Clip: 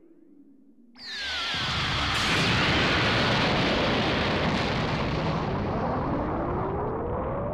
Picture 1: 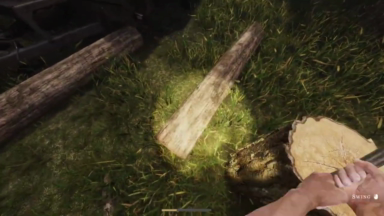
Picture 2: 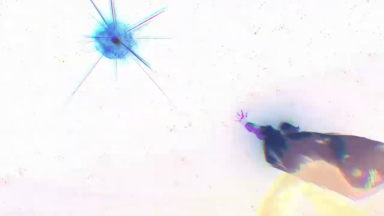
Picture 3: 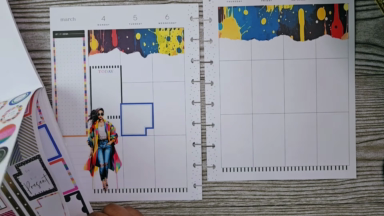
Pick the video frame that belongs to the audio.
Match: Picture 2